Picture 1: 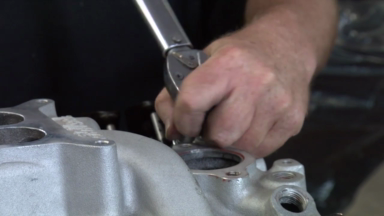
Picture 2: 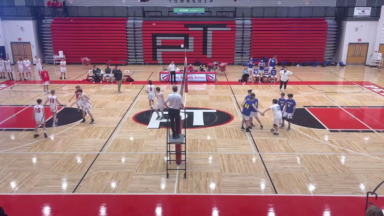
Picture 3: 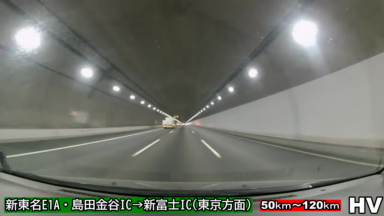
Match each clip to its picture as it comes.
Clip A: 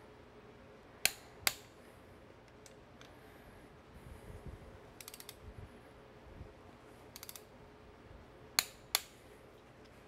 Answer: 1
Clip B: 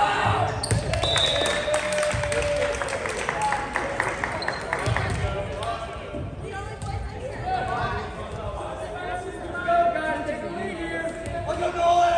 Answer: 2